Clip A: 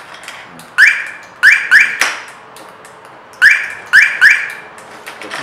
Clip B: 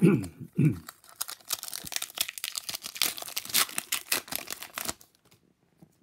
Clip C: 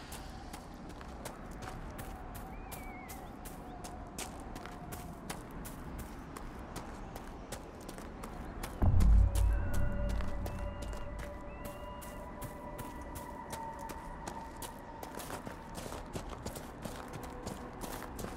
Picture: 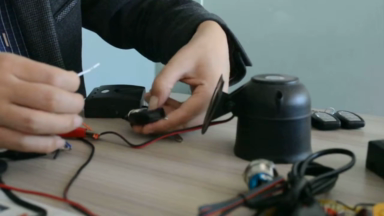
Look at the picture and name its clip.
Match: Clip A